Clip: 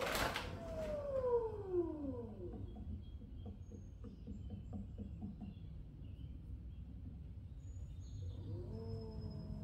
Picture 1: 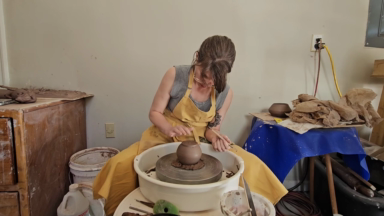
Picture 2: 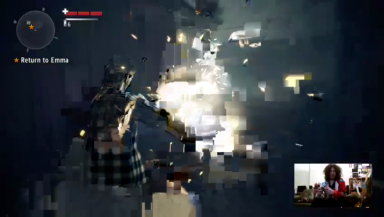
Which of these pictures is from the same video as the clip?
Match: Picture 1